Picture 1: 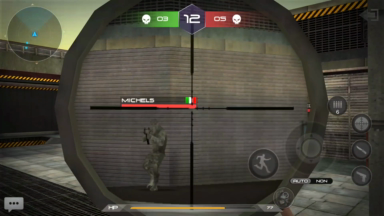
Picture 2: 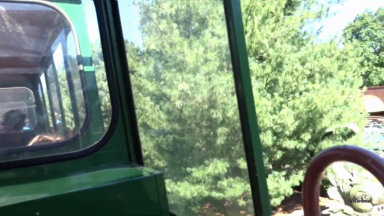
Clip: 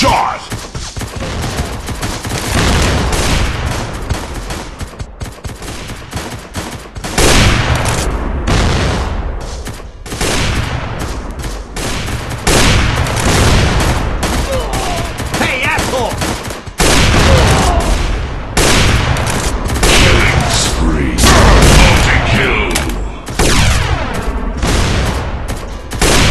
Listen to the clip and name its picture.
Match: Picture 1